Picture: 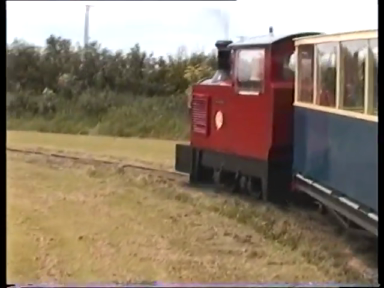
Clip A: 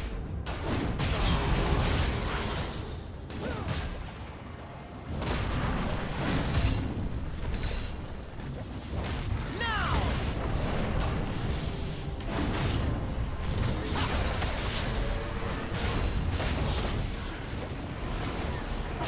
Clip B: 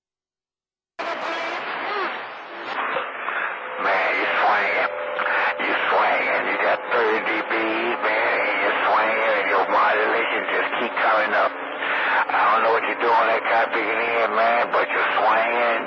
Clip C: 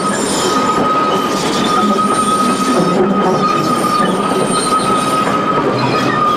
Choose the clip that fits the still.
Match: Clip C